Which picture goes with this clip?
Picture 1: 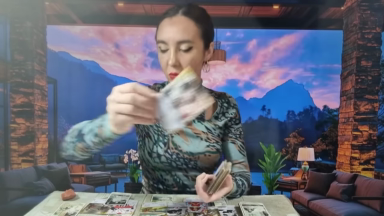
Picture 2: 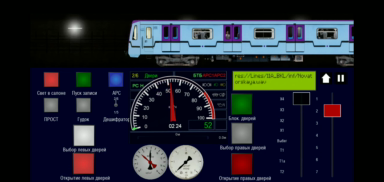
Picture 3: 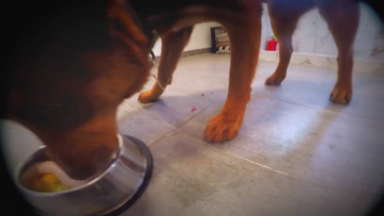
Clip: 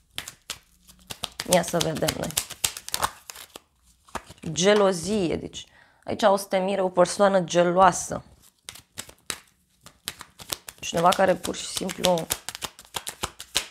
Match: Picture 1